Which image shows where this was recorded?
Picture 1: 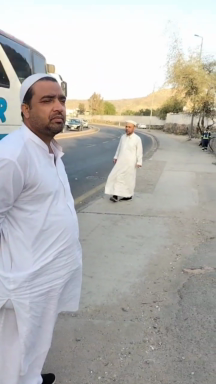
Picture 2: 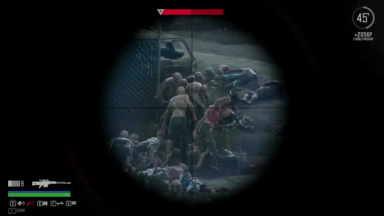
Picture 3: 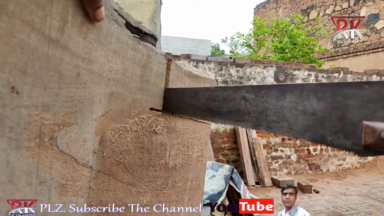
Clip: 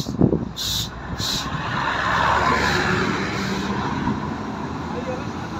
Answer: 1